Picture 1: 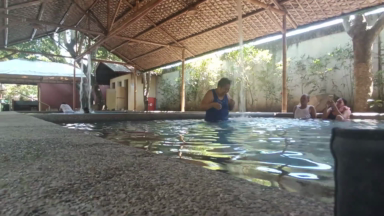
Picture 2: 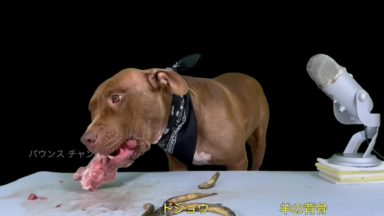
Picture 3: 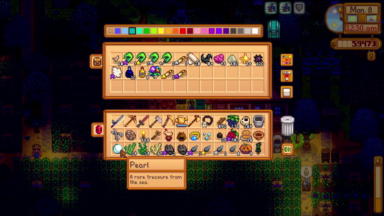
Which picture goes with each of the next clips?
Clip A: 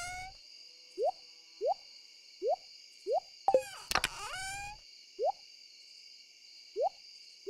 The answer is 3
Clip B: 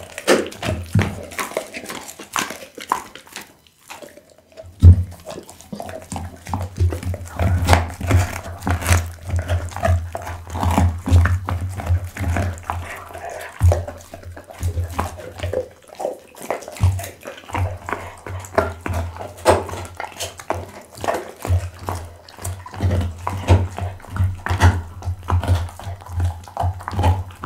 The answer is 2